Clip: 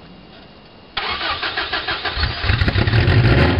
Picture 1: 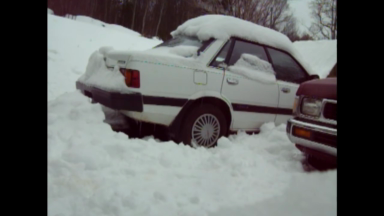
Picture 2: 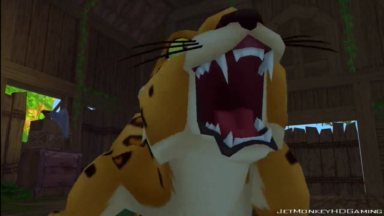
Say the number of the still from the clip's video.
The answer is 1